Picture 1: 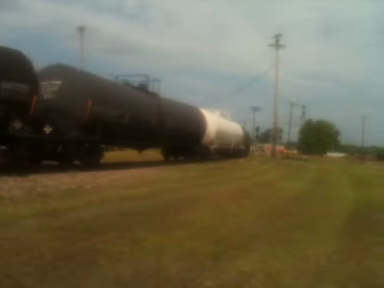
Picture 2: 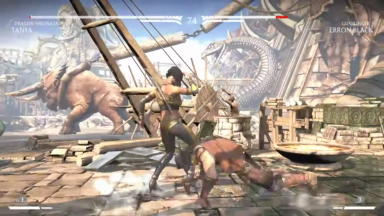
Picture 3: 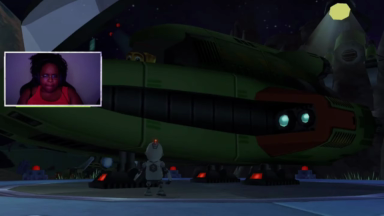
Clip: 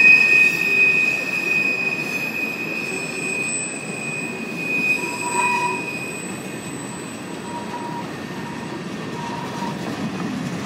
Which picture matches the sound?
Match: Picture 1